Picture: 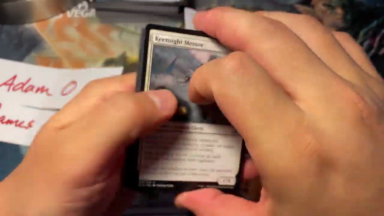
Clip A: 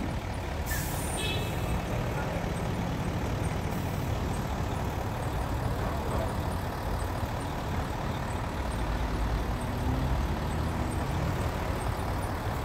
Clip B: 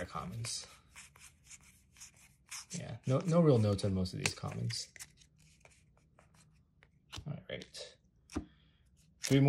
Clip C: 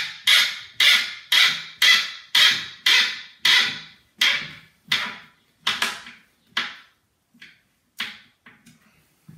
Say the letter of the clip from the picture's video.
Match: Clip B